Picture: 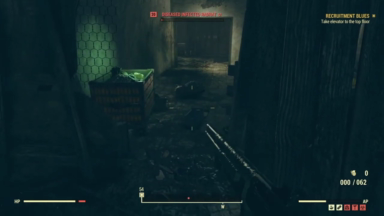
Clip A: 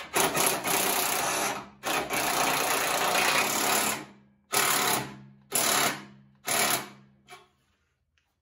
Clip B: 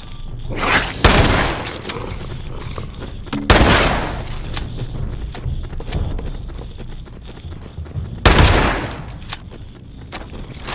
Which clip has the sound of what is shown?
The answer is B